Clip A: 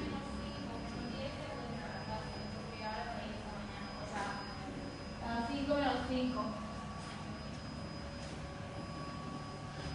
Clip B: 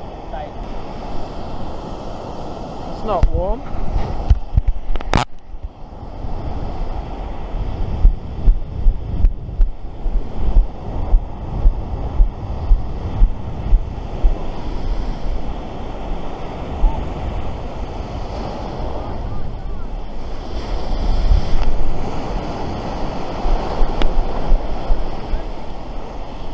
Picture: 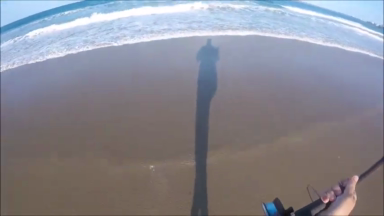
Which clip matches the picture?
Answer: B